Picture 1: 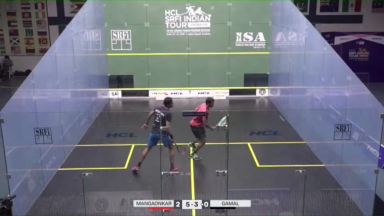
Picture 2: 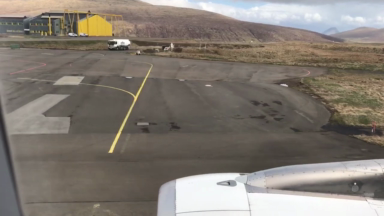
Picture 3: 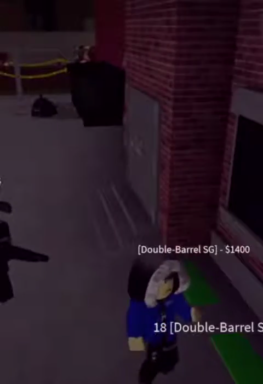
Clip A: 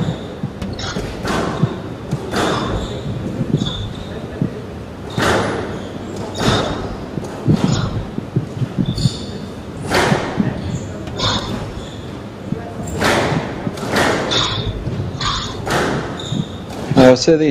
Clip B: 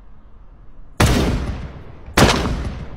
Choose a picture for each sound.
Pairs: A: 1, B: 3